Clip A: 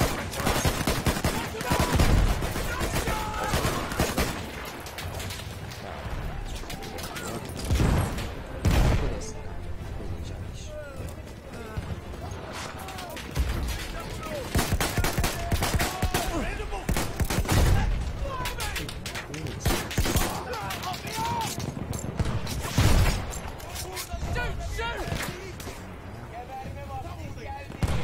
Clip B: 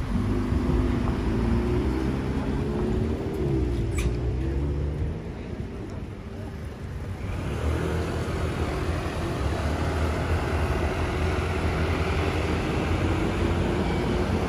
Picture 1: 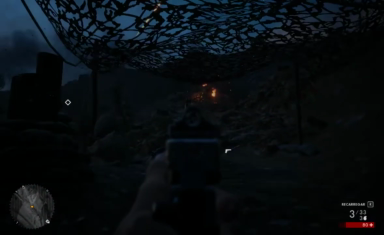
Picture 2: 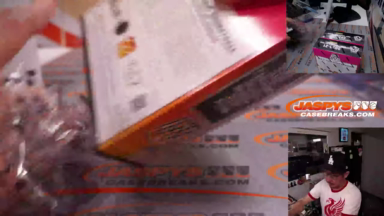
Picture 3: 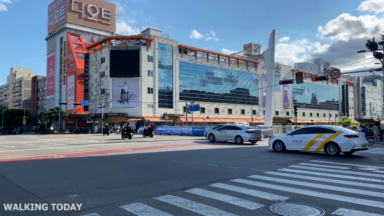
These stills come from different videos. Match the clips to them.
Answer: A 1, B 3